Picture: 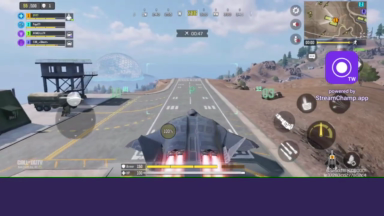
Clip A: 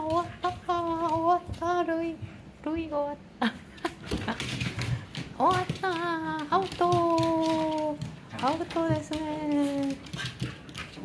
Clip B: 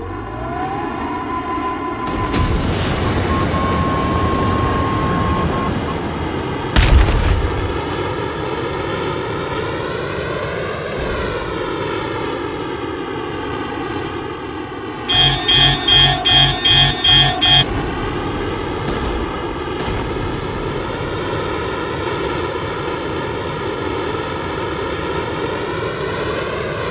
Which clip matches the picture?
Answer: B